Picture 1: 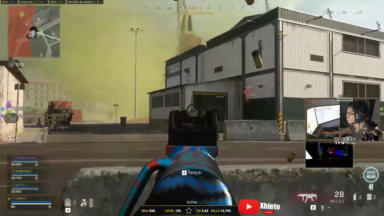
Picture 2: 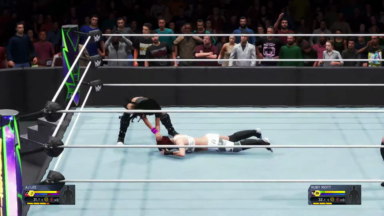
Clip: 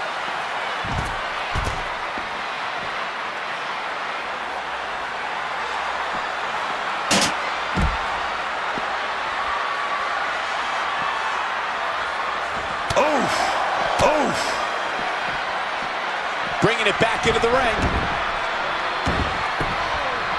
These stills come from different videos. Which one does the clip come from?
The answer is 2